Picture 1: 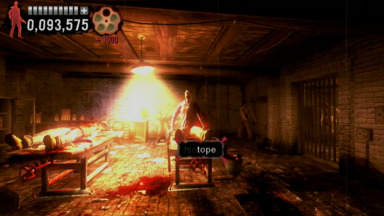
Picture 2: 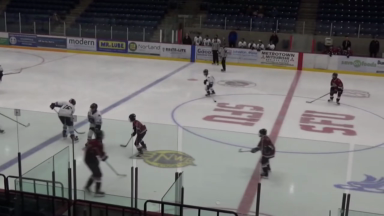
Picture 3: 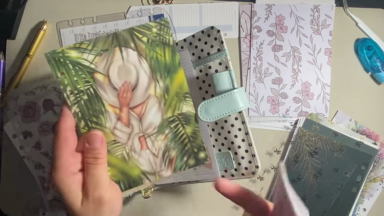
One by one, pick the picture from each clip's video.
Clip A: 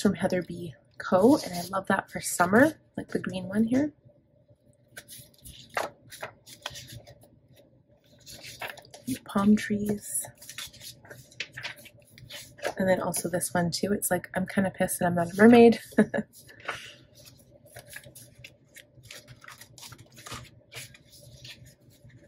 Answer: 3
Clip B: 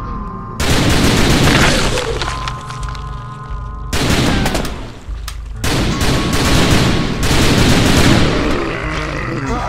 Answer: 1